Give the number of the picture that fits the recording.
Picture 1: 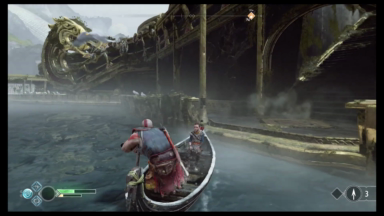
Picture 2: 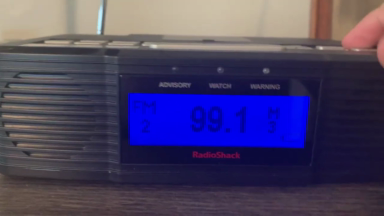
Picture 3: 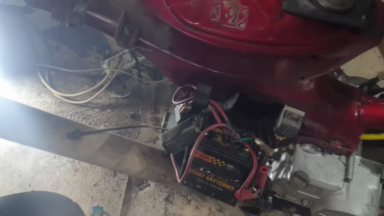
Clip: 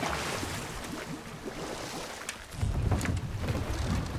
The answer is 1